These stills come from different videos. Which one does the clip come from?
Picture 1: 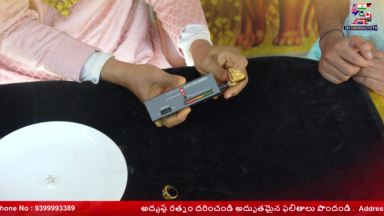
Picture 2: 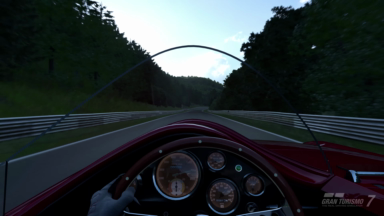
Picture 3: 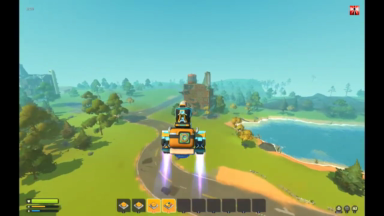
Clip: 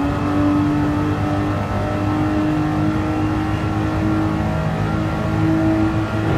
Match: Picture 2